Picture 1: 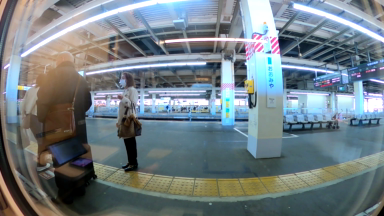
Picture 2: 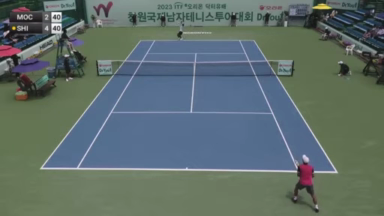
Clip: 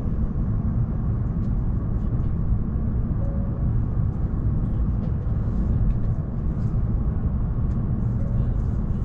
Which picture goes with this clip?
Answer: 1